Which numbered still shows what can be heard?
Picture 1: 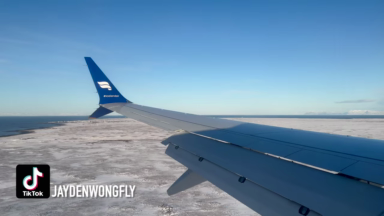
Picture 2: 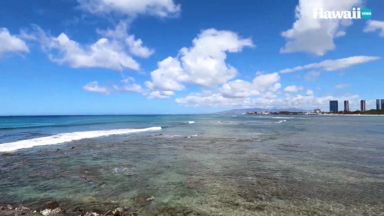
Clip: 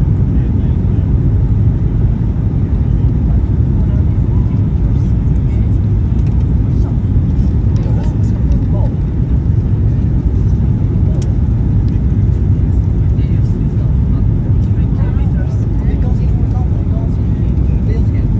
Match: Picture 1